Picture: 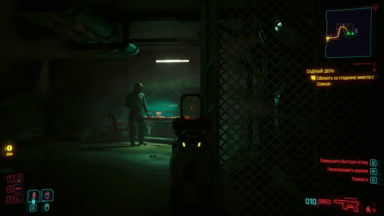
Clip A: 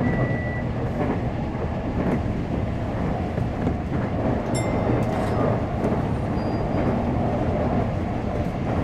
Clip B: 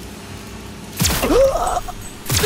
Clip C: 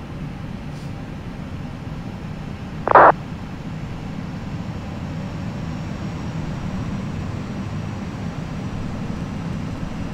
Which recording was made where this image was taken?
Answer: B